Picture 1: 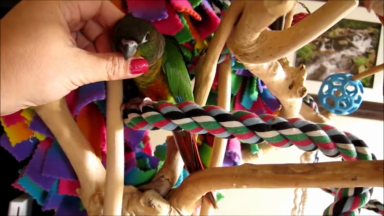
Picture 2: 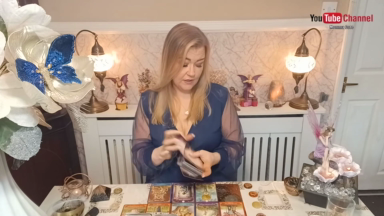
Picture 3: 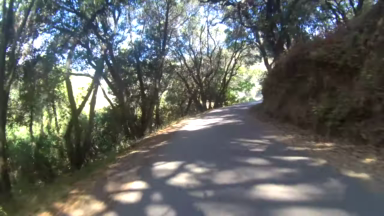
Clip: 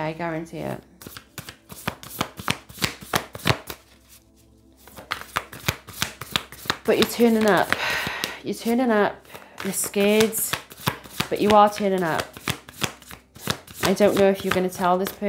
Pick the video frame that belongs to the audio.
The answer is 2